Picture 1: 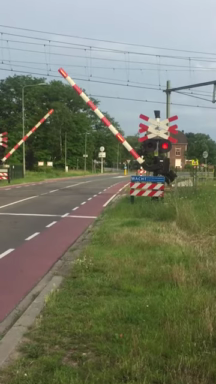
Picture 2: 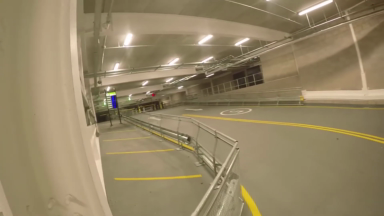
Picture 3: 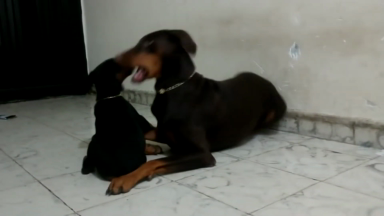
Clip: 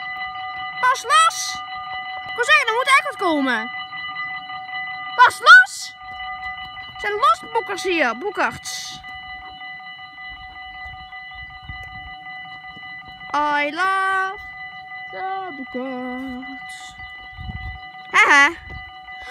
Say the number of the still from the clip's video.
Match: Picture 1